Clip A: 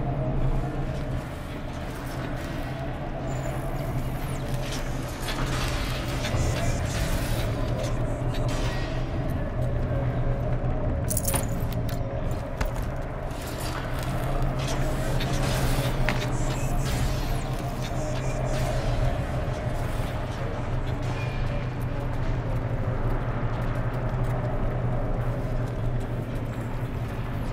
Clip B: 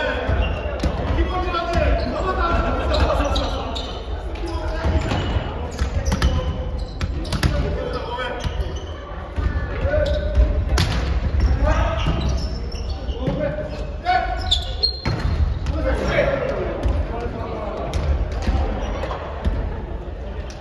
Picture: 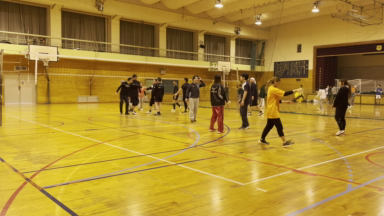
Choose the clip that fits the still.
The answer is B